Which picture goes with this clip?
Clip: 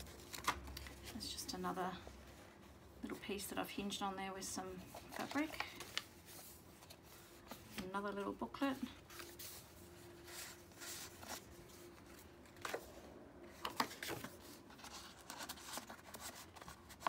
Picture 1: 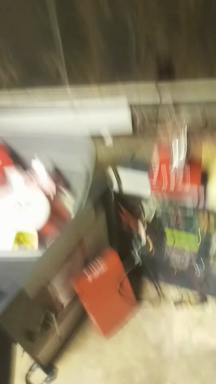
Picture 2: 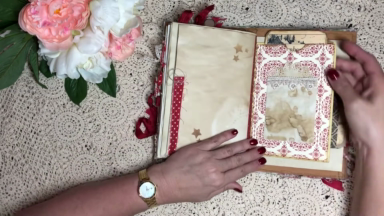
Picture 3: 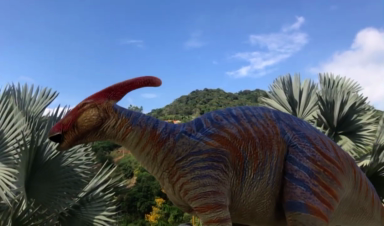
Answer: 2